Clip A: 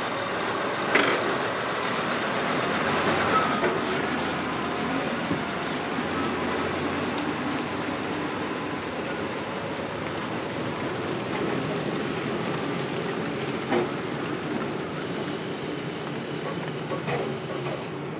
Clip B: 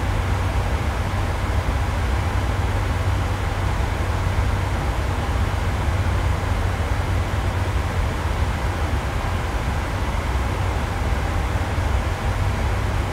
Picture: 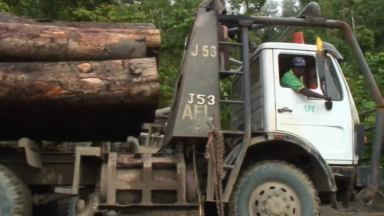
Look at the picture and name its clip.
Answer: A